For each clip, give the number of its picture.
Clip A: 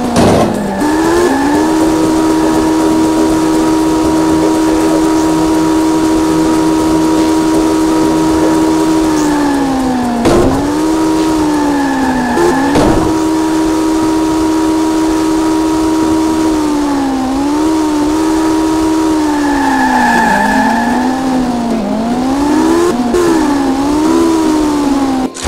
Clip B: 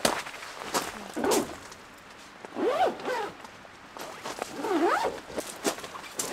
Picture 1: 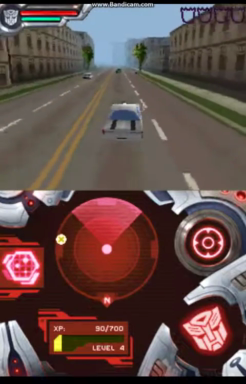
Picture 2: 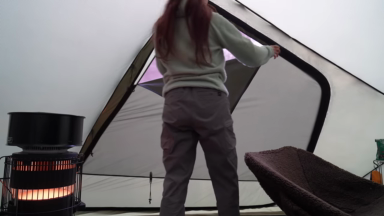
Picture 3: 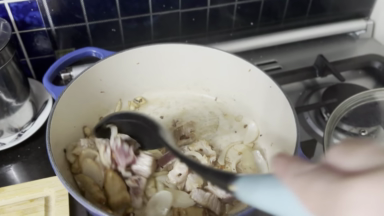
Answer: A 1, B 2